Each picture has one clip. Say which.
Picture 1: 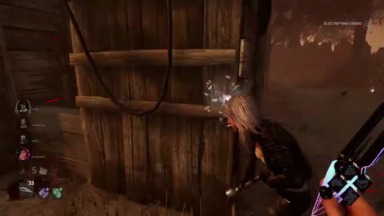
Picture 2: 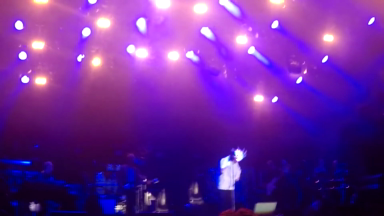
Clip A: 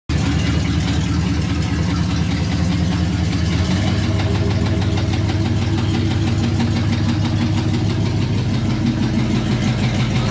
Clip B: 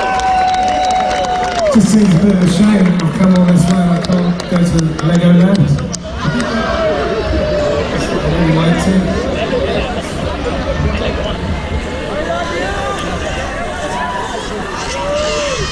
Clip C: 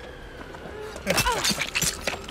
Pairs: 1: C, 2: B